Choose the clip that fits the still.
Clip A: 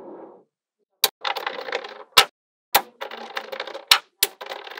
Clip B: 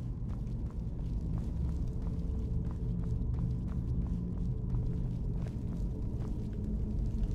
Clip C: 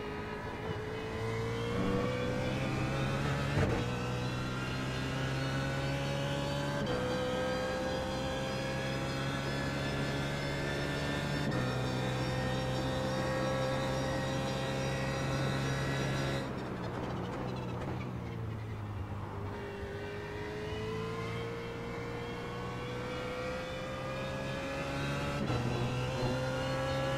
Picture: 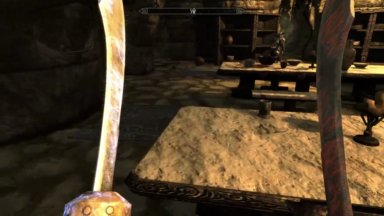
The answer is B